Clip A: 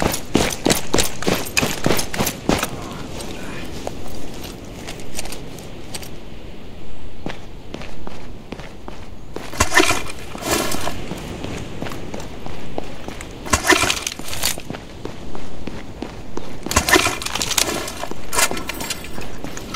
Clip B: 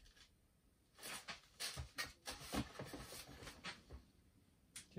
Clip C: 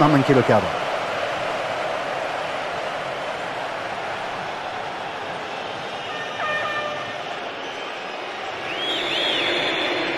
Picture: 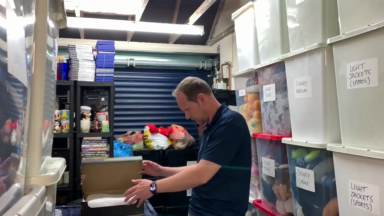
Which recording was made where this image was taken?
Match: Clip B